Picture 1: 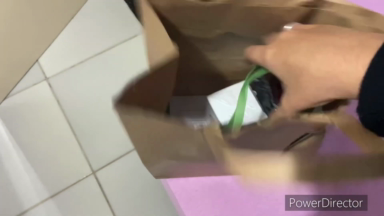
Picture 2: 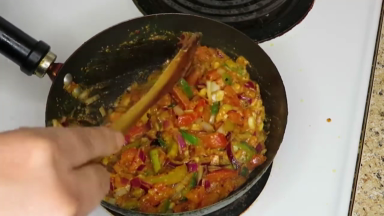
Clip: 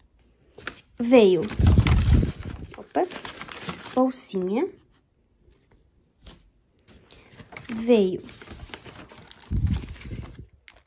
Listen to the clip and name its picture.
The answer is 1